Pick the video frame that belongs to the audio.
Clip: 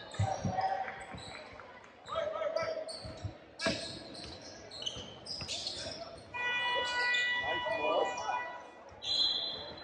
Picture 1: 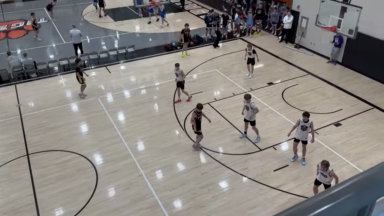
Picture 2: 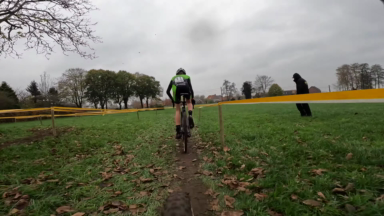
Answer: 1